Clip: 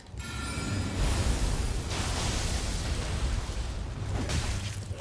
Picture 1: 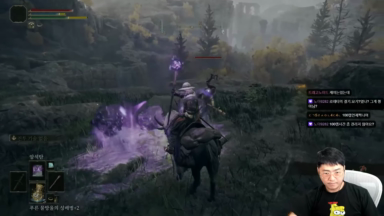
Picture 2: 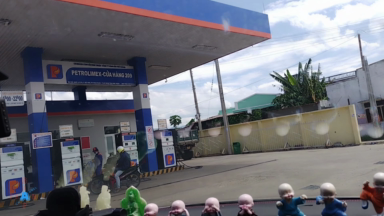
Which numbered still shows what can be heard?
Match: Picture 1